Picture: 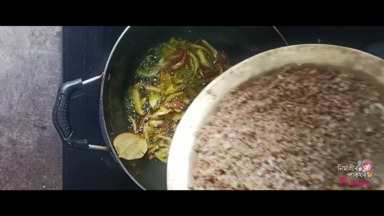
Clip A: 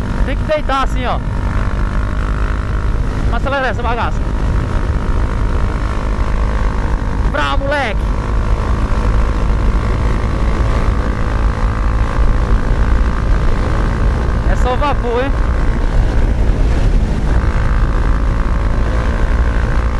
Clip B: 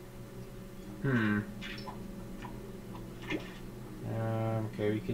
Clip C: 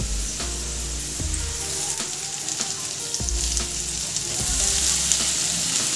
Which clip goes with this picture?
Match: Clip C